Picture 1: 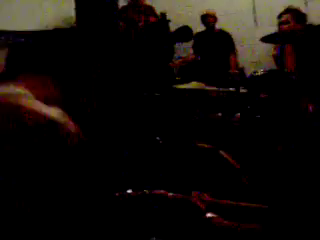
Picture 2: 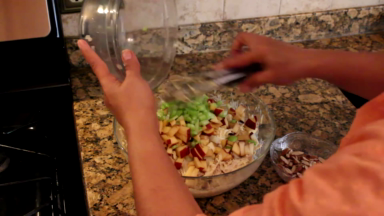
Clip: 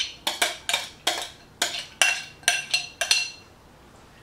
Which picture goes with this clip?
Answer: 2